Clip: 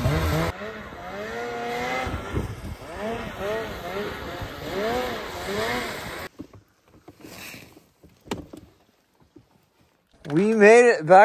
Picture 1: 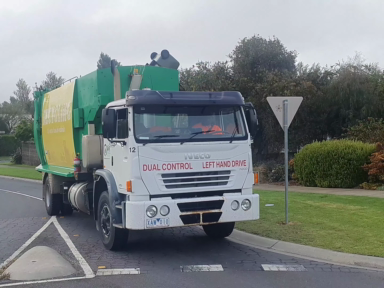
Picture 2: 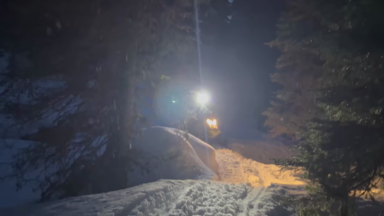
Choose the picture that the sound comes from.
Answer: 2